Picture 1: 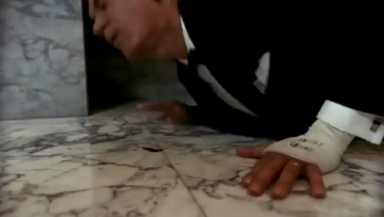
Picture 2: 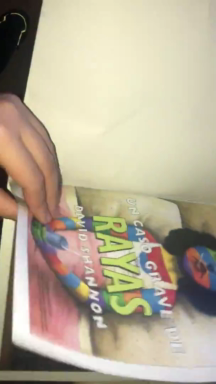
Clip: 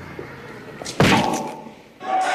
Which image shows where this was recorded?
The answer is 1